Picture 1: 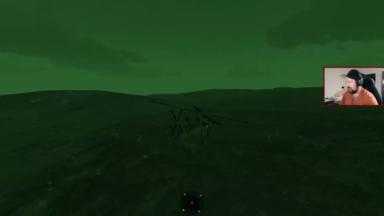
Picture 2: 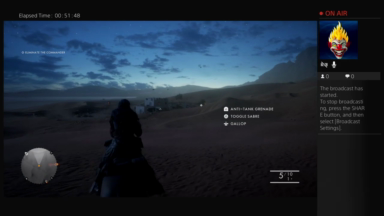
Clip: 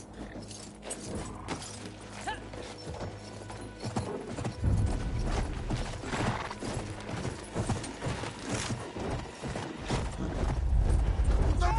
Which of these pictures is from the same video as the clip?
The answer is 2